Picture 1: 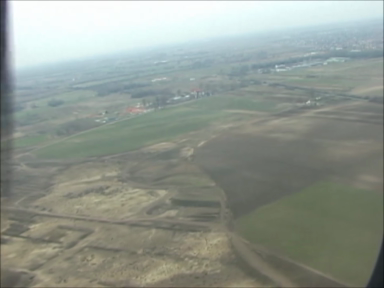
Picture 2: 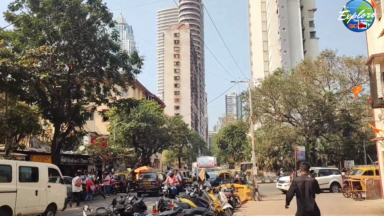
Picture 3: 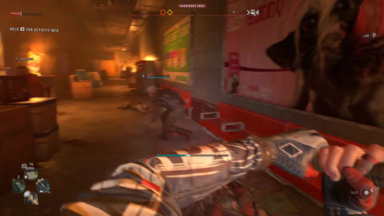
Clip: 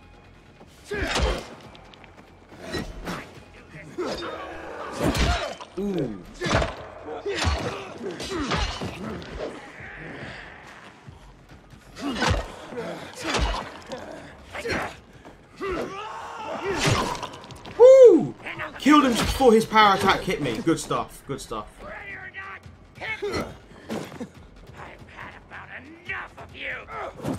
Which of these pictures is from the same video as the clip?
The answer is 3